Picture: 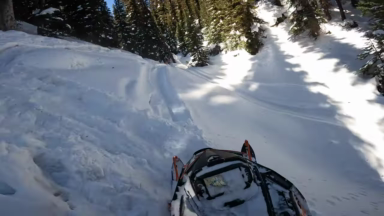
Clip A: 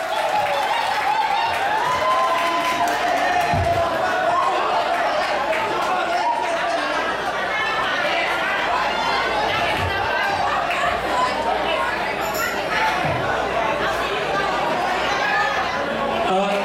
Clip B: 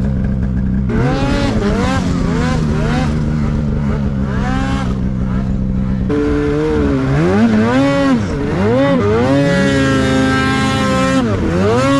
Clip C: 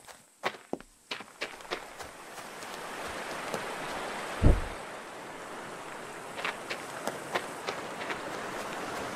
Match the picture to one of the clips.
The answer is B